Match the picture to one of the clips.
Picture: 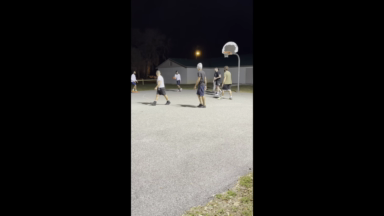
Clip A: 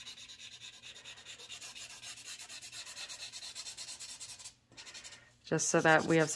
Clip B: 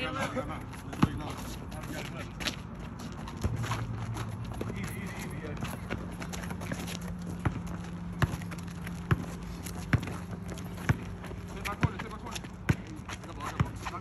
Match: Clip B